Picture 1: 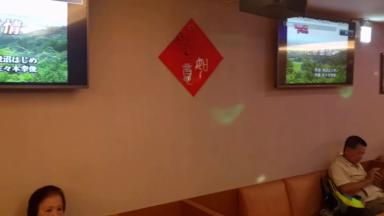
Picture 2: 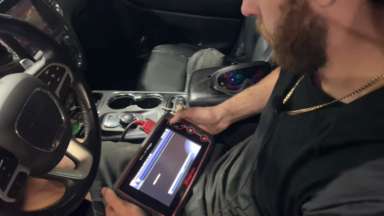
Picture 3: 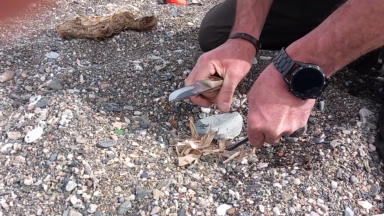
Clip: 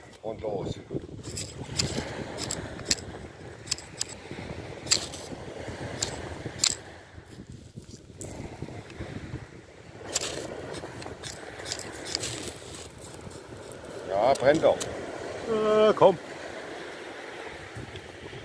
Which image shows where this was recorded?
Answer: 3